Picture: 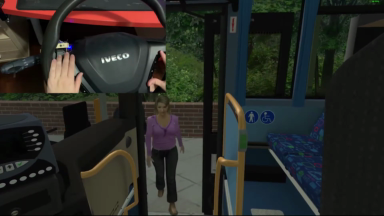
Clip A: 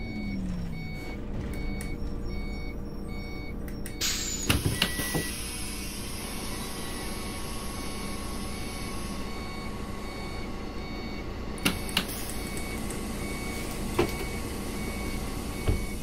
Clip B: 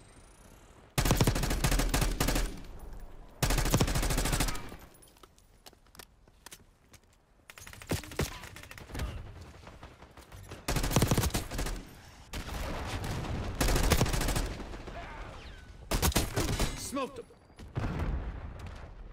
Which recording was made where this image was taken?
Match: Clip A